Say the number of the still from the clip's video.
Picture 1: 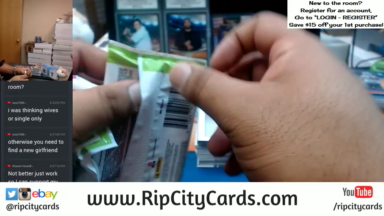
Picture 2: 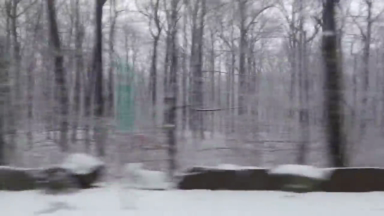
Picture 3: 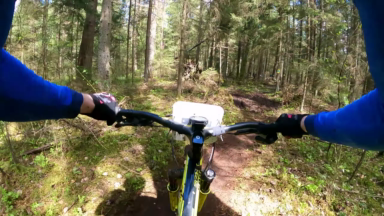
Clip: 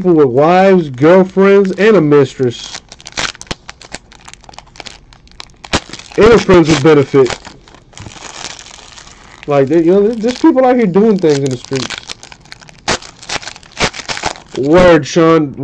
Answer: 1